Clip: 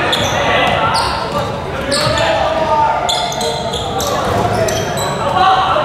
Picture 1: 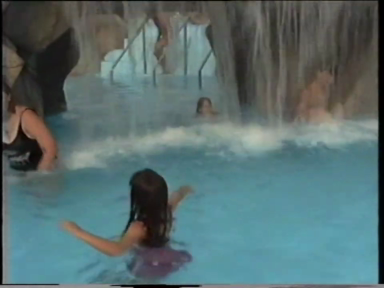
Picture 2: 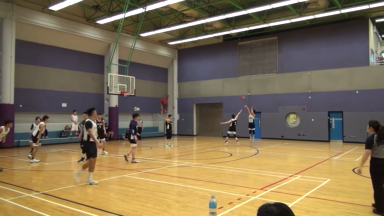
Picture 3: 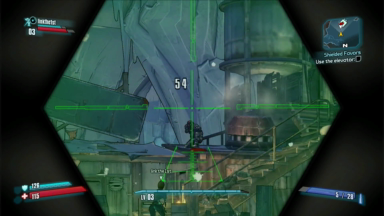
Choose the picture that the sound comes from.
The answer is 2